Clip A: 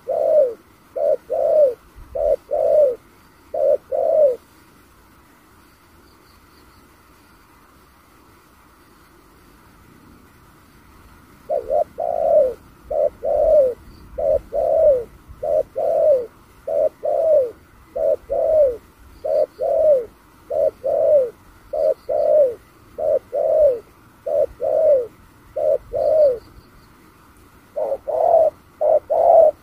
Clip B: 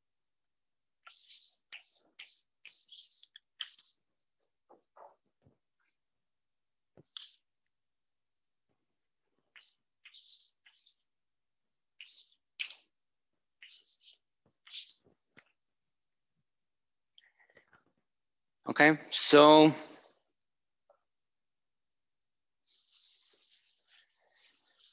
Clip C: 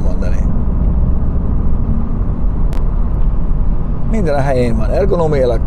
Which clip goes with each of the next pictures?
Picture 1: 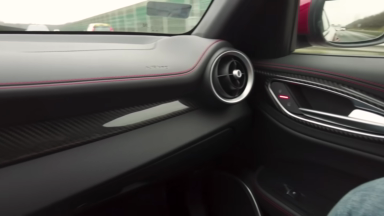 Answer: C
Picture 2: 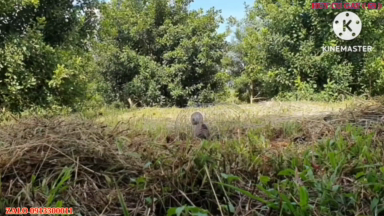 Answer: A